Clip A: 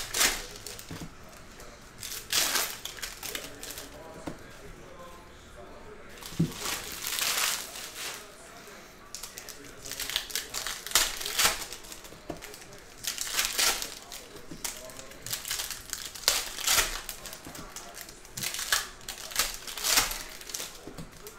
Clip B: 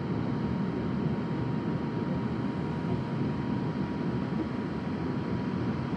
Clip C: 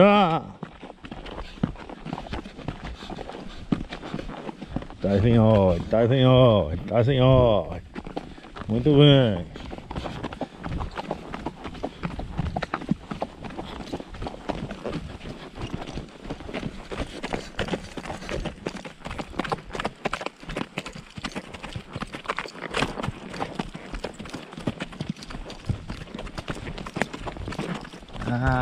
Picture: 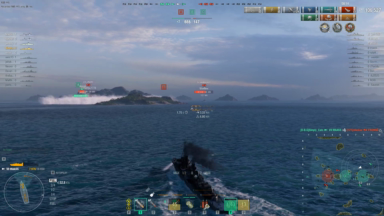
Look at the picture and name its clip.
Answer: B